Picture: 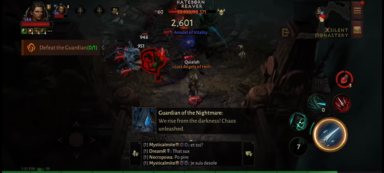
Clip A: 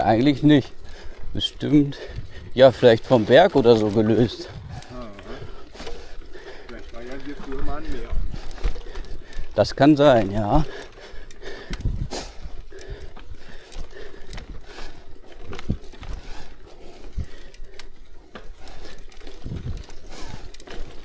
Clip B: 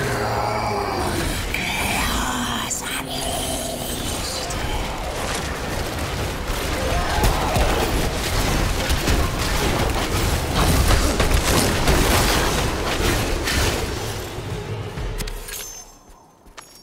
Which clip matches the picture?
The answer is B